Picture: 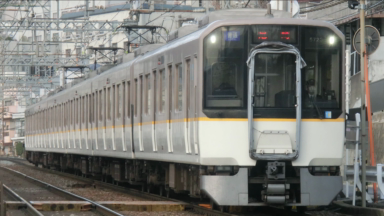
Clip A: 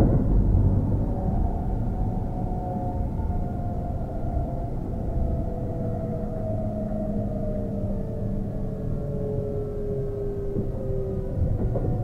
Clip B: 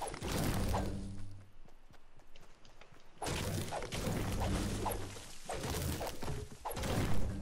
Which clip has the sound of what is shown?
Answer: A